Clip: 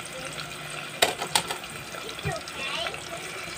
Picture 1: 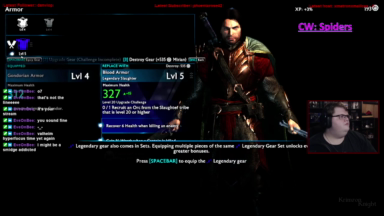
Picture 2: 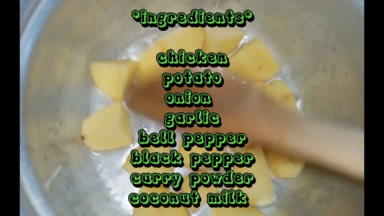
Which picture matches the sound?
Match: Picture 2